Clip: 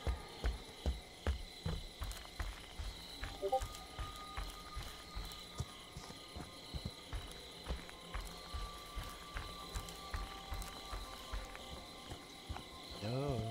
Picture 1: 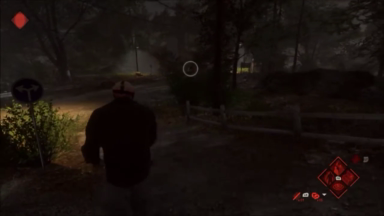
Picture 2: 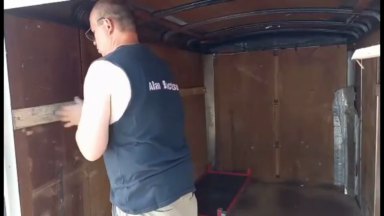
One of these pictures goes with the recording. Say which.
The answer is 1